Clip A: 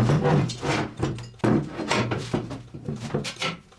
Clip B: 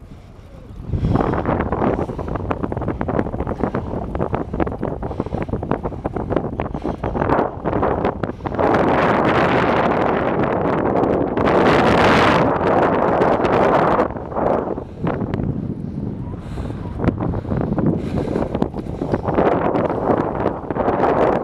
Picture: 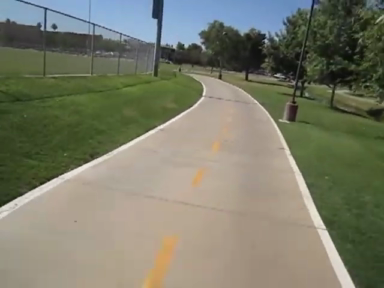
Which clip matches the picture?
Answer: B